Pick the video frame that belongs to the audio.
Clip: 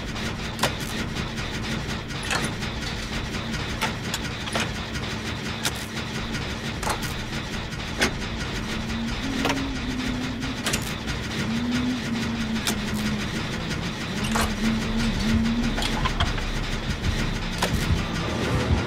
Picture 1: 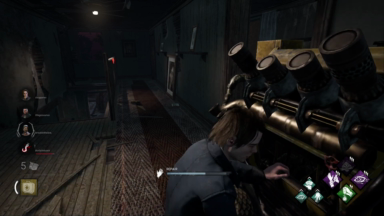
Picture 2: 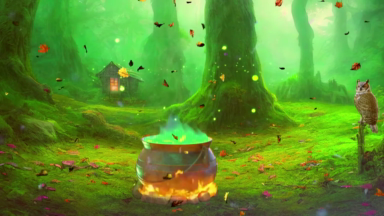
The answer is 1